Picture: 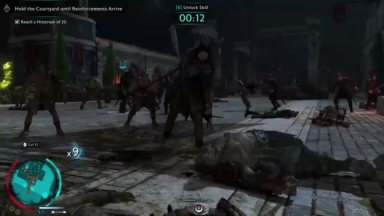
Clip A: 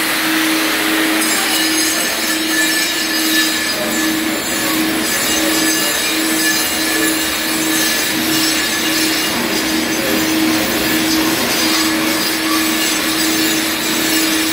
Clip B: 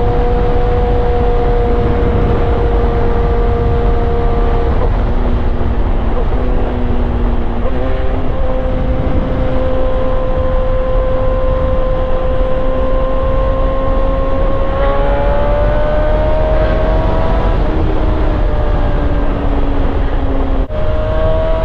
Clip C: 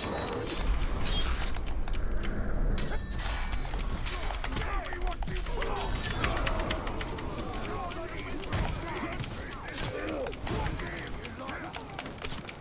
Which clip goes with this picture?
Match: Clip C